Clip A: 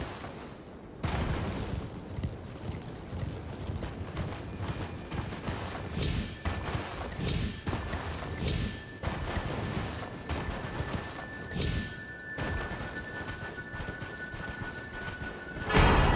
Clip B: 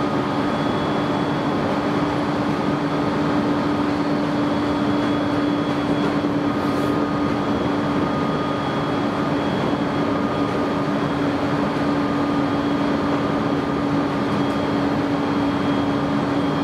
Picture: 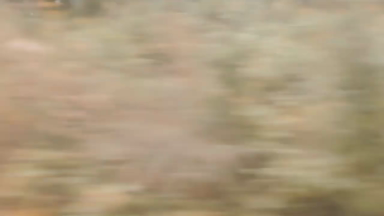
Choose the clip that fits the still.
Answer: B